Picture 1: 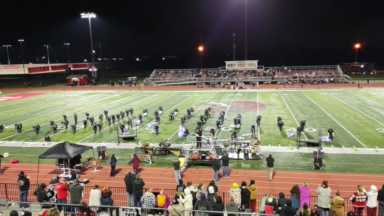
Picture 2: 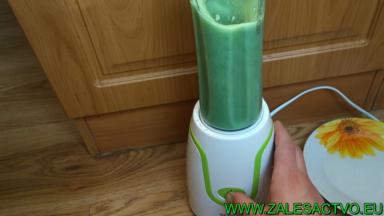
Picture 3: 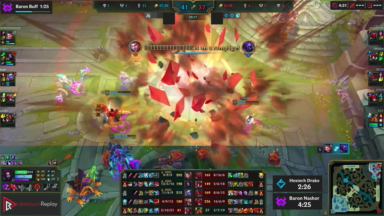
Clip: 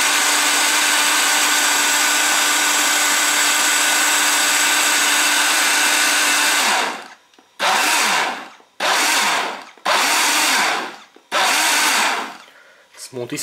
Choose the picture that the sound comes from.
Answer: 2